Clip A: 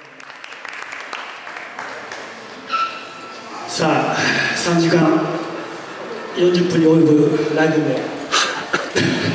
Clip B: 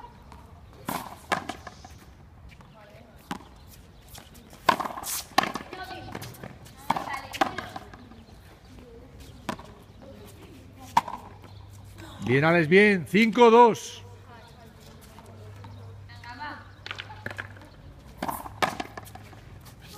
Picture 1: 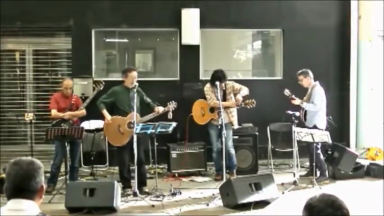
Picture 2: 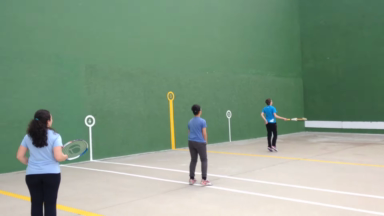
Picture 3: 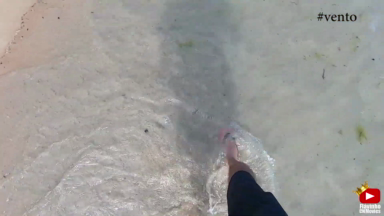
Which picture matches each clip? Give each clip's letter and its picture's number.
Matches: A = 1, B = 2